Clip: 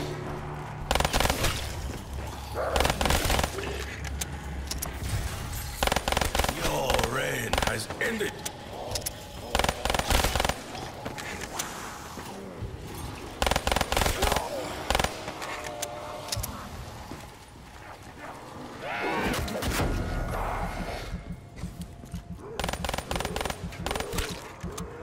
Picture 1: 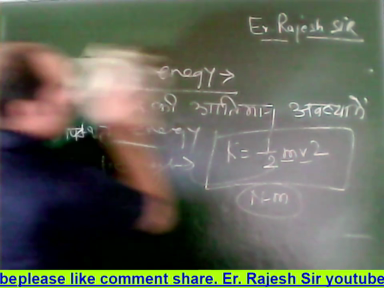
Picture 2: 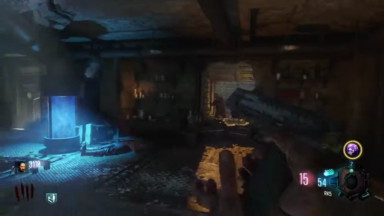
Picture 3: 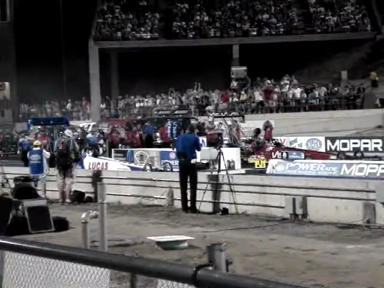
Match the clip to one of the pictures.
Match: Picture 2